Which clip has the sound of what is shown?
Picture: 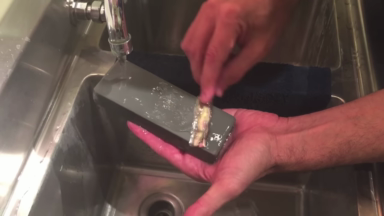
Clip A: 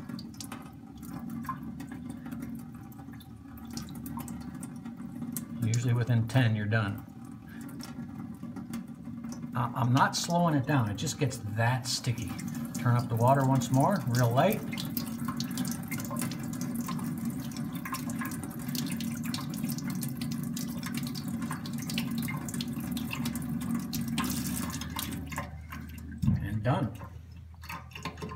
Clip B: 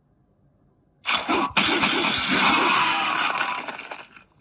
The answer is A